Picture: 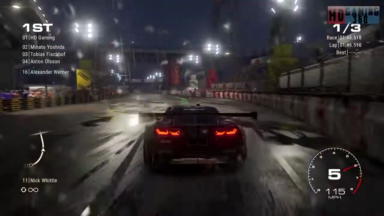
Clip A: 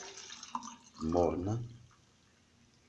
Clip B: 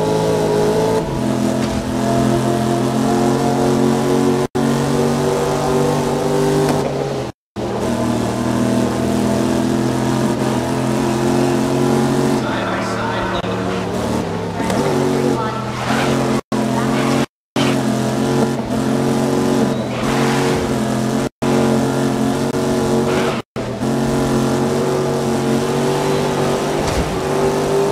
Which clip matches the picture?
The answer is B